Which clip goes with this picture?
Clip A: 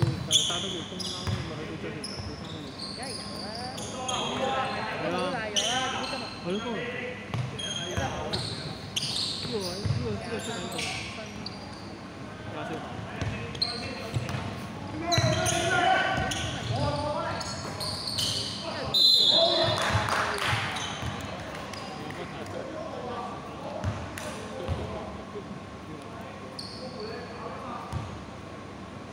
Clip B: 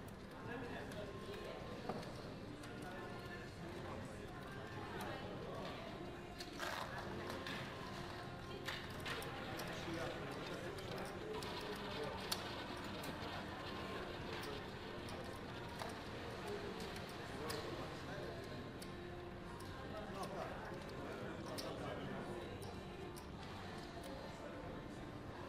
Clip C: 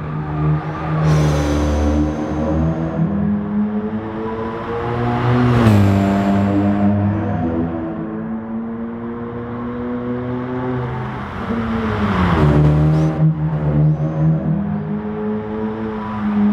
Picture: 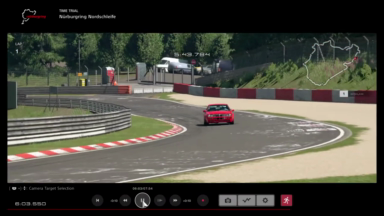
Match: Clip C